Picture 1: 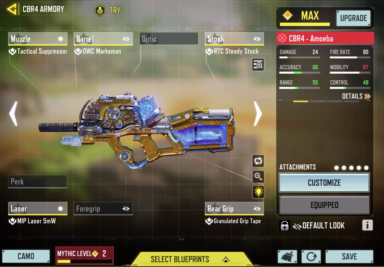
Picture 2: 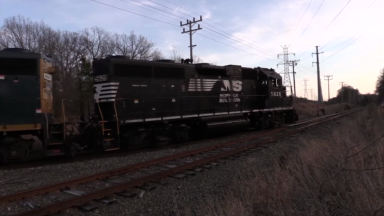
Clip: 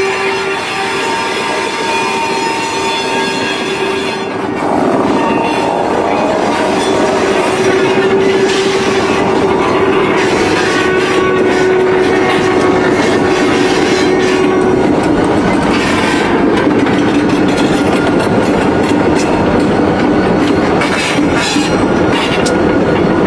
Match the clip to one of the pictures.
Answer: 2